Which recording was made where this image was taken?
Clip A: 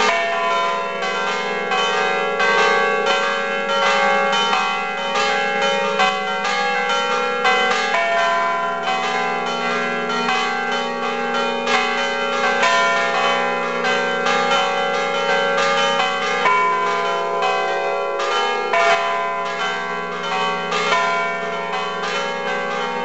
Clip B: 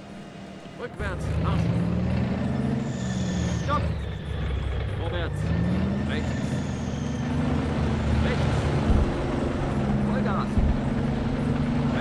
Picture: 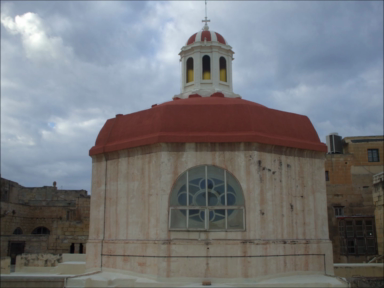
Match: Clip A